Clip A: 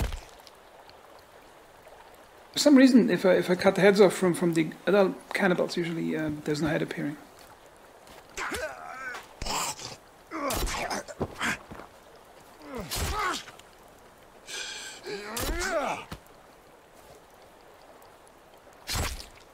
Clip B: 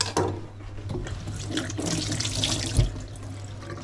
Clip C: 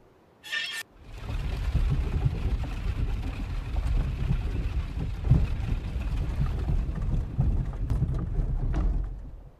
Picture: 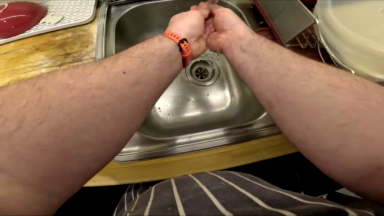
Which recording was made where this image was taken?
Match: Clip B